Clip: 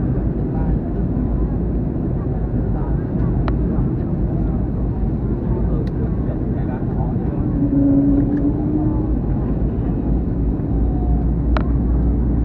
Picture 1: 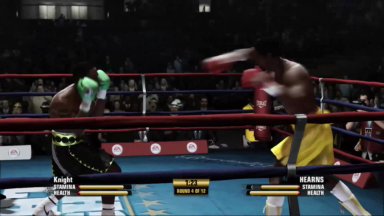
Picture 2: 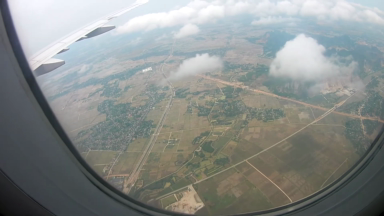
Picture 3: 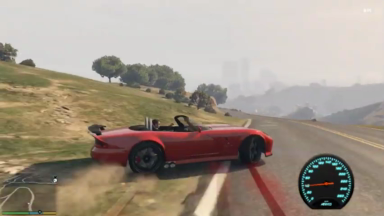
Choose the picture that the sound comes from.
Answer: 2